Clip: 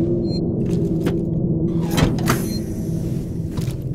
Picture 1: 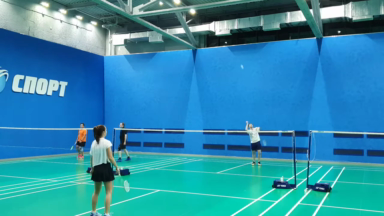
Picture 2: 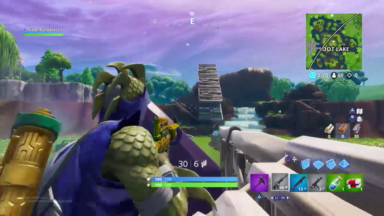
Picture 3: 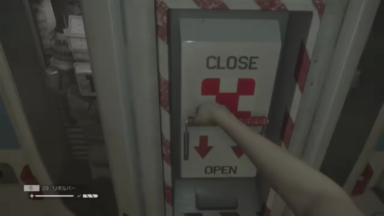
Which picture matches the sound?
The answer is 3